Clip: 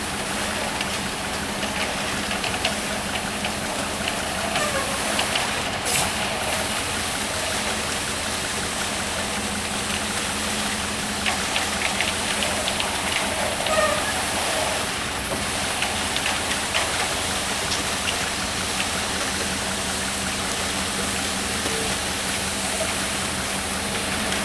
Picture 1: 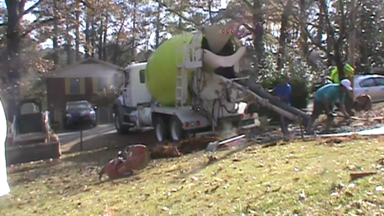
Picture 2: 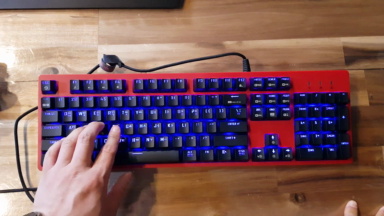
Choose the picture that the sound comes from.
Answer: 1